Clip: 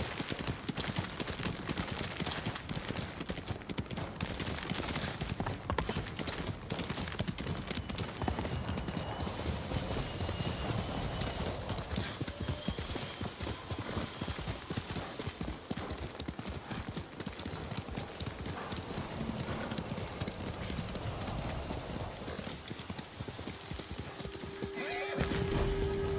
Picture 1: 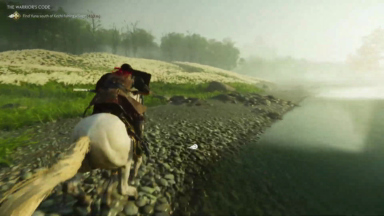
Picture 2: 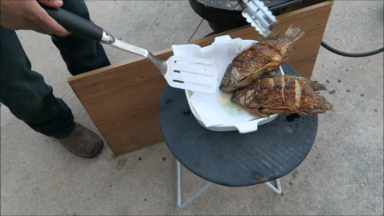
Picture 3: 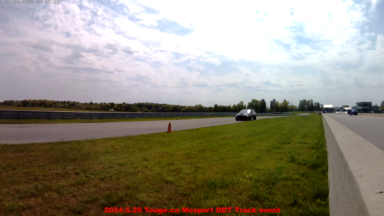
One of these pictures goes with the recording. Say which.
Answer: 1